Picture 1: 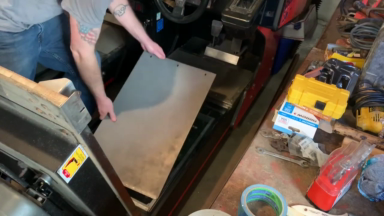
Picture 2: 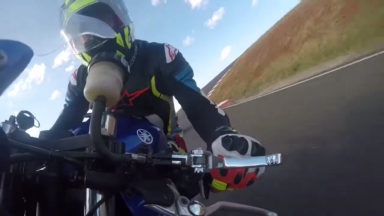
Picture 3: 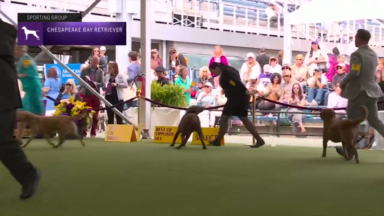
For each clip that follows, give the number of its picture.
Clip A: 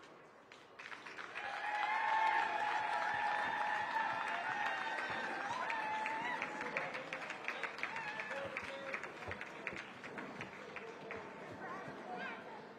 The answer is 3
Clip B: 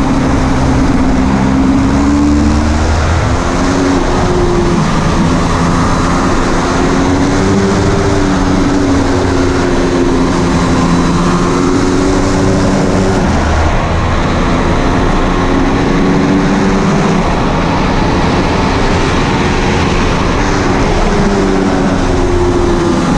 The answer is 2